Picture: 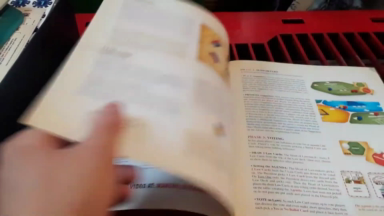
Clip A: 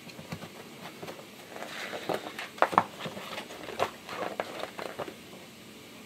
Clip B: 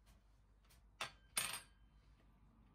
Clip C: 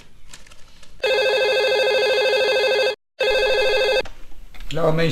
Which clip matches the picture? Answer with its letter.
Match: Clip A